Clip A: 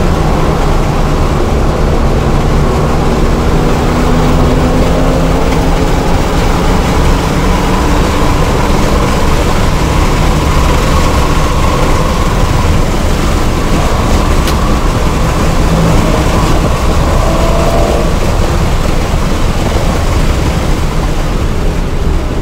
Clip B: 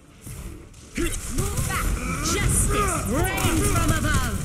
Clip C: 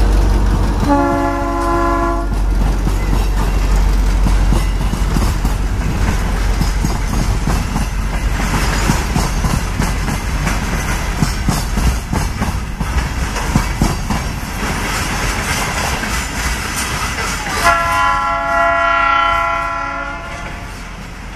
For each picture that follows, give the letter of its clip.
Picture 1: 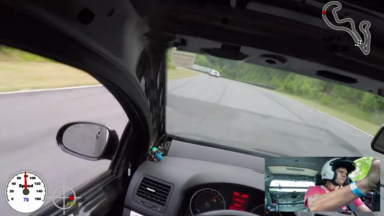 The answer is A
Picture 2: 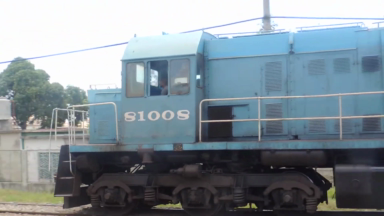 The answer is C